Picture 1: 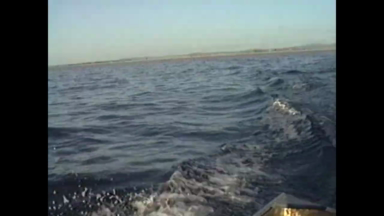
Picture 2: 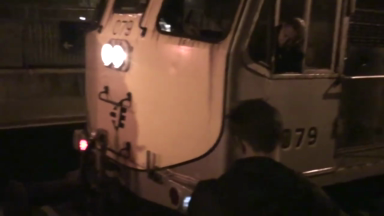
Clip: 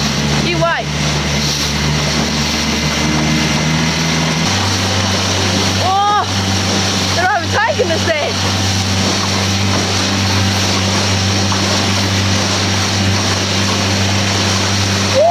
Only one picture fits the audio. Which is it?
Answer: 1